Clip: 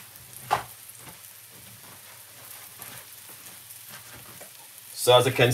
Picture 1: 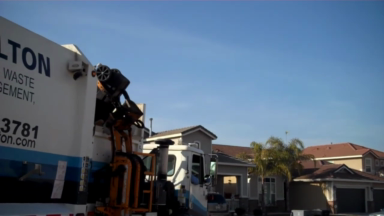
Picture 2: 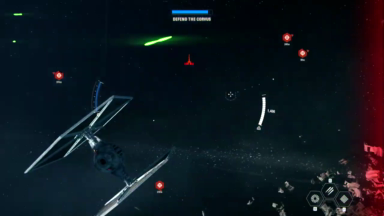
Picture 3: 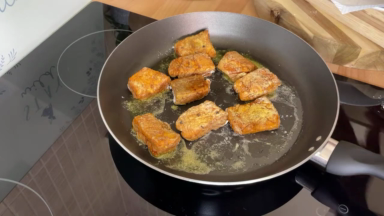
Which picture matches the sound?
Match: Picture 3